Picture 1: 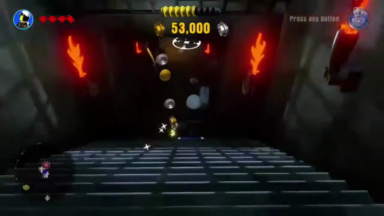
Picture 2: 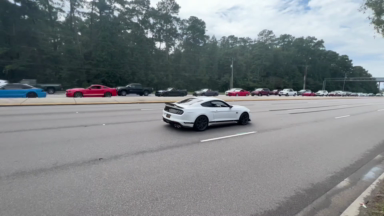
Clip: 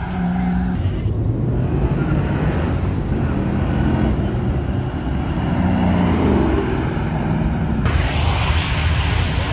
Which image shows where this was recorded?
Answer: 2